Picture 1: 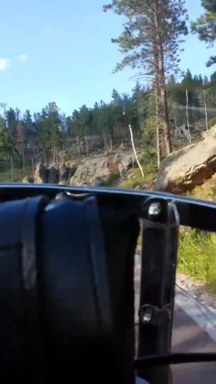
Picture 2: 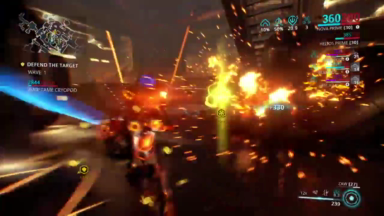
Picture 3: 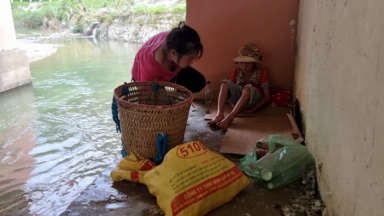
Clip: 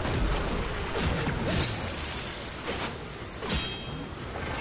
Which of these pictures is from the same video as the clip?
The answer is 2